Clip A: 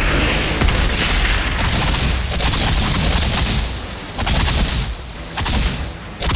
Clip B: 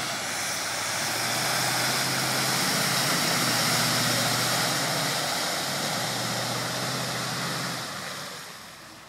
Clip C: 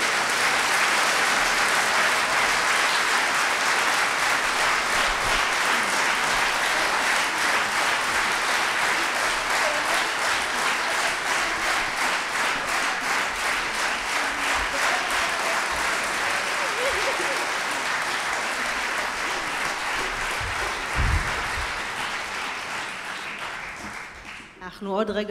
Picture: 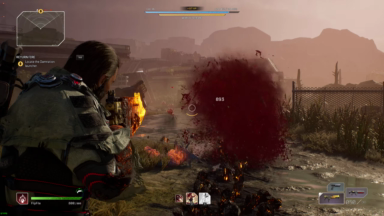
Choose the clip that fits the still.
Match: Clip A